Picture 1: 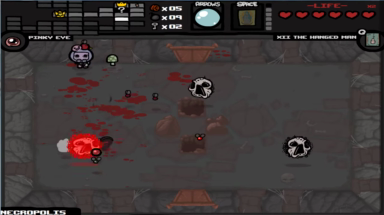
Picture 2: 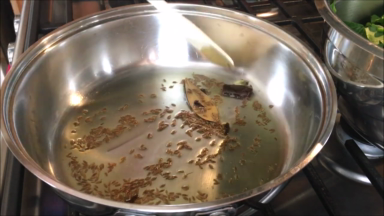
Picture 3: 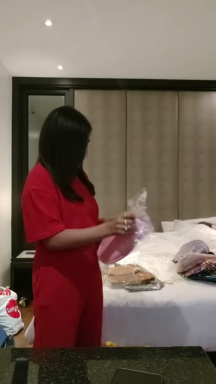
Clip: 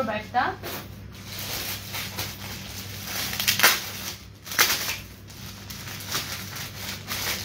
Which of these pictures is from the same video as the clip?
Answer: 3